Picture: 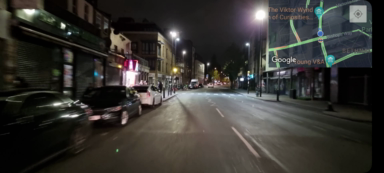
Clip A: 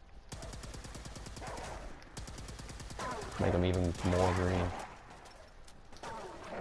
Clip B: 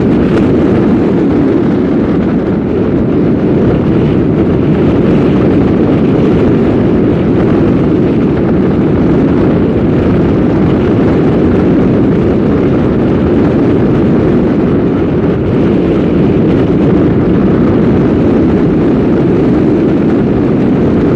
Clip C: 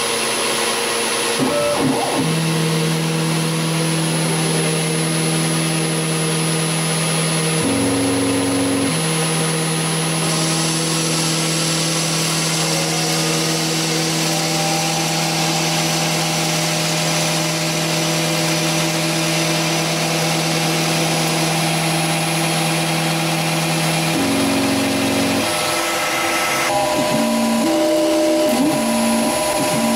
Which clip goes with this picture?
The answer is B